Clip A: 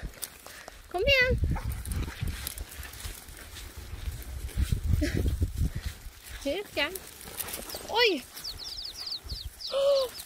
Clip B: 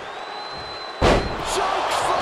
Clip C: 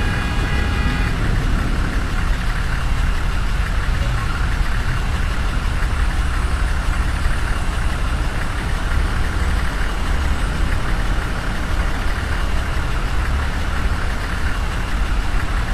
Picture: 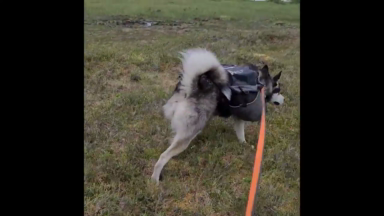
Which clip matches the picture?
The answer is A